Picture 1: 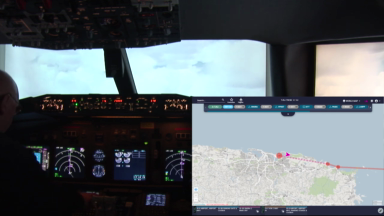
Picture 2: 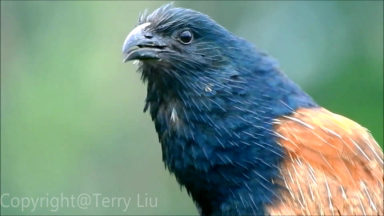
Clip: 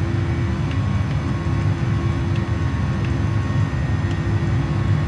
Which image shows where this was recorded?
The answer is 1